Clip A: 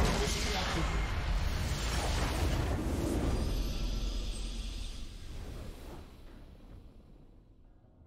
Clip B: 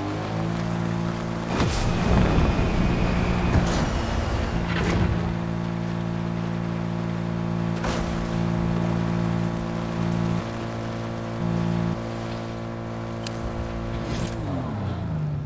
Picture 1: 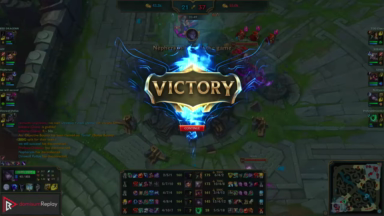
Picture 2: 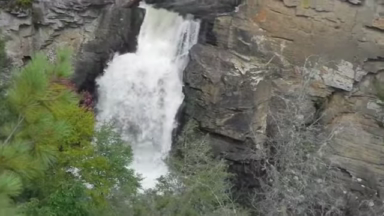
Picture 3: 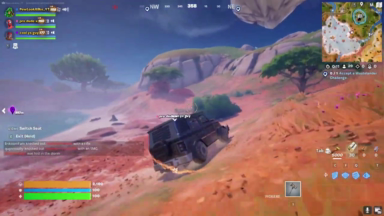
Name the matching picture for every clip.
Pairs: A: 1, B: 3